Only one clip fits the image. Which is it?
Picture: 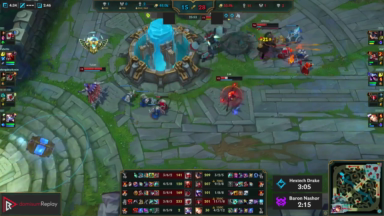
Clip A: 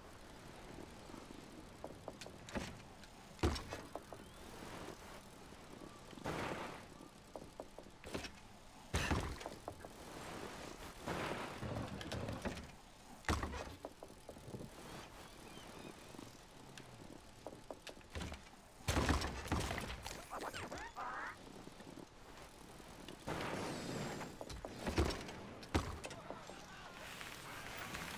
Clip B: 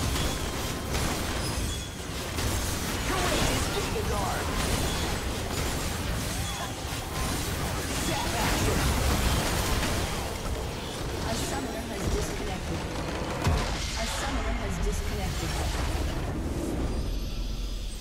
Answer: B